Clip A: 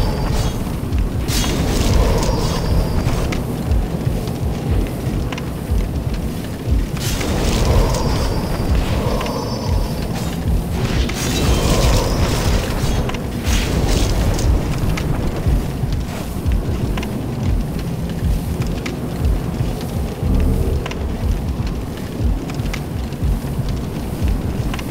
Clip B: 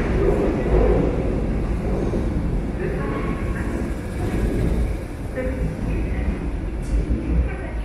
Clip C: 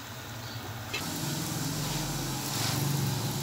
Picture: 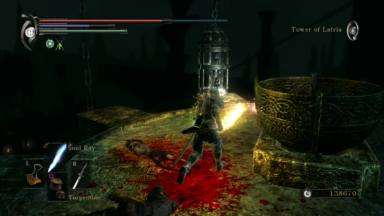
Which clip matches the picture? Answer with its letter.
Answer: A